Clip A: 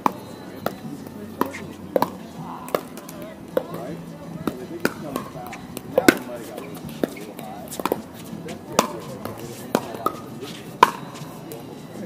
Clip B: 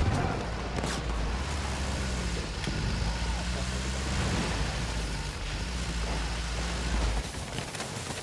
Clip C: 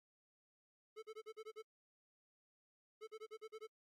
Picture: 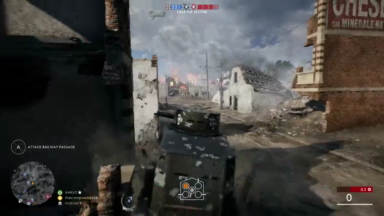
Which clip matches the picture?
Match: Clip B